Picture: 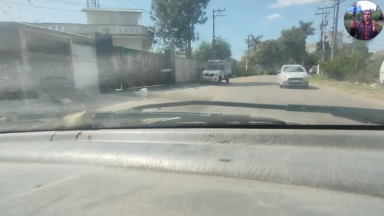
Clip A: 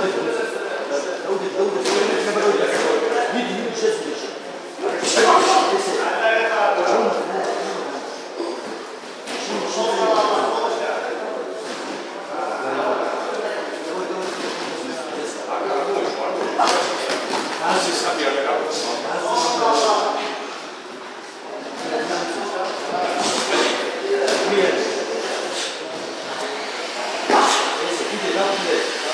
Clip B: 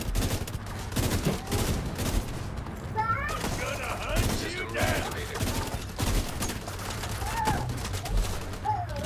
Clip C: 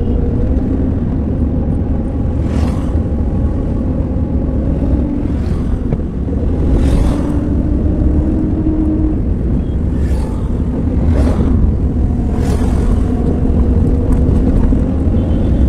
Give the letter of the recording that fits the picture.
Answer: C